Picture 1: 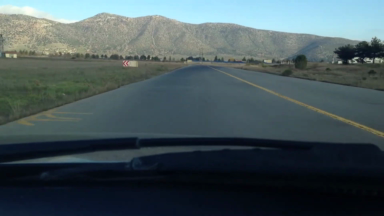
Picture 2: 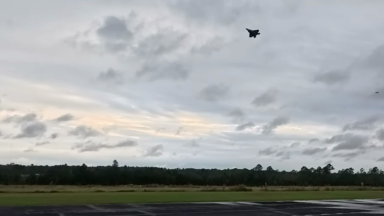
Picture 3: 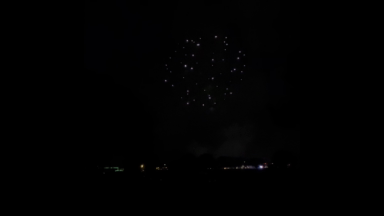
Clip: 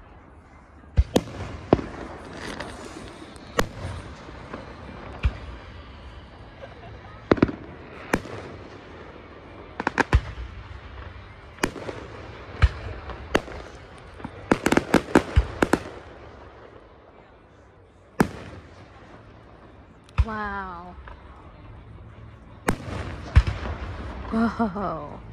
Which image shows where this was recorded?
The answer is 3